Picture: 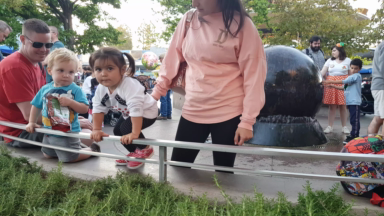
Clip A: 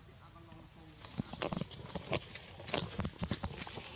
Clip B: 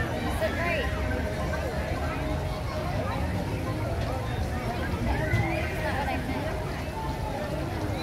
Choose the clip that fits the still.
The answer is B